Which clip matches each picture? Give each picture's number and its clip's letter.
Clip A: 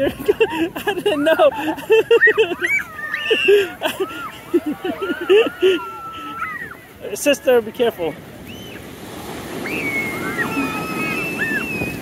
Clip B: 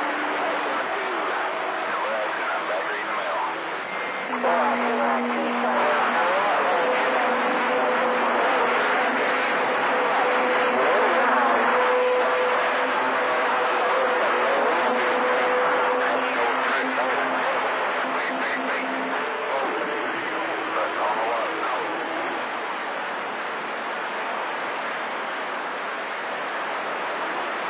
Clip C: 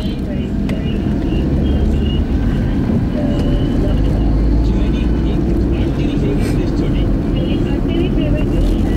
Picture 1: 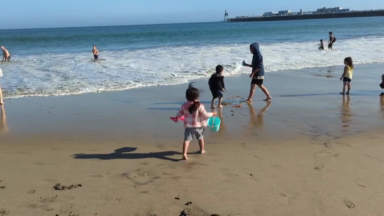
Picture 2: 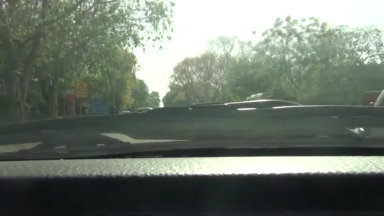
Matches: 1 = A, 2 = C